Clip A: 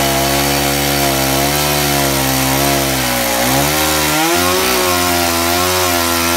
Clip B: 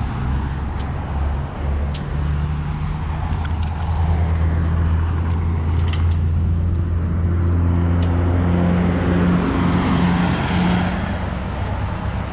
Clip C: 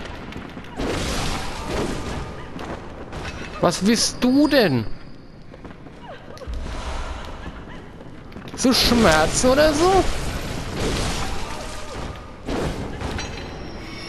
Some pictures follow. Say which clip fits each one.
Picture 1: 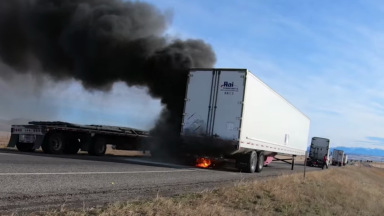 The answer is B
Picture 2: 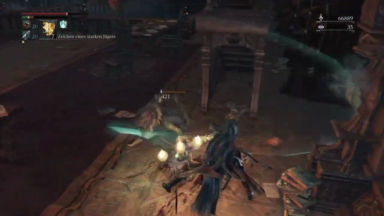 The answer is C